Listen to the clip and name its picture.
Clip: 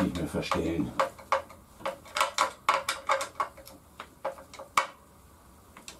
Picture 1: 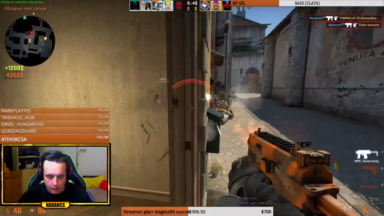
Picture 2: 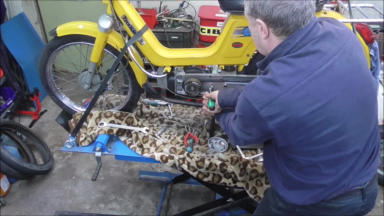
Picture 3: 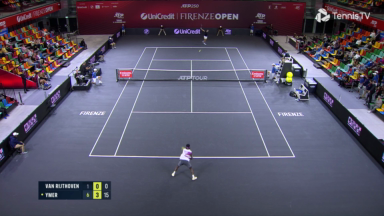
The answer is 2